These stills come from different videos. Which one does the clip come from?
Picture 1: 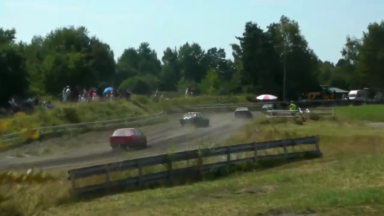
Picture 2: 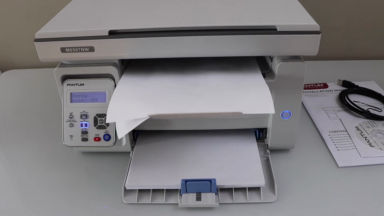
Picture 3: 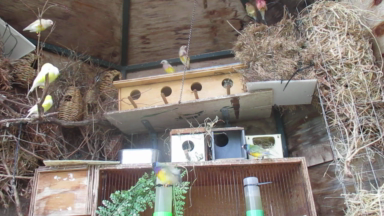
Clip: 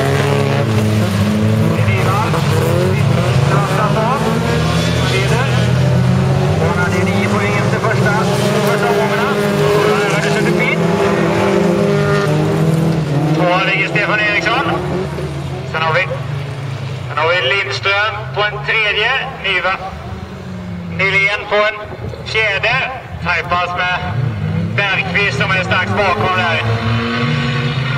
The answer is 1